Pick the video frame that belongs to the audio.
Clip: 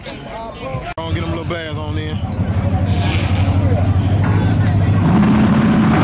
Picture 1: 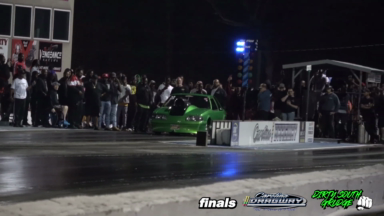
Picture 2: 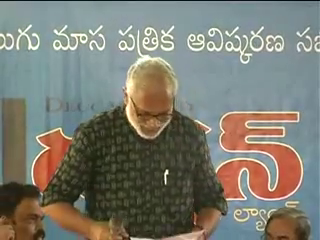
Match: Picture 1